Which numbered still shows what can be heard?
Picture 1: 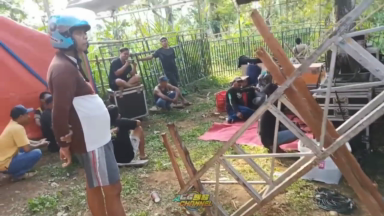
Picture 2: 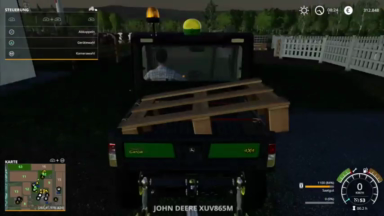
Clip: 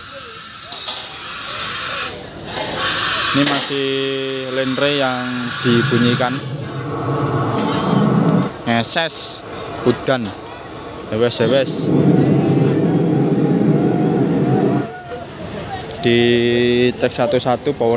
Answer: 1